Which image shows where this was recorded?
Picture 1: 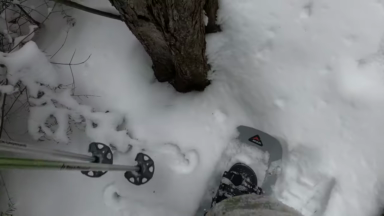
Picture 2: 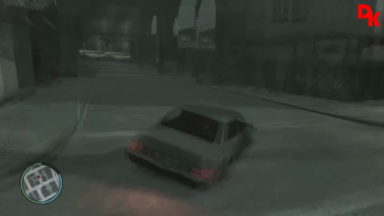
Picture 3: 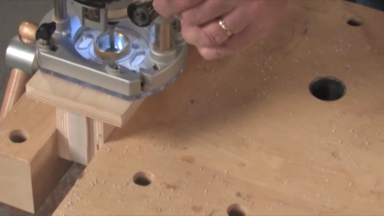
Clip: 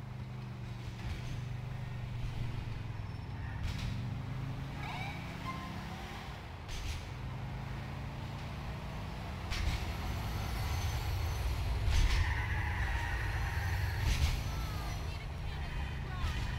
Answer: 2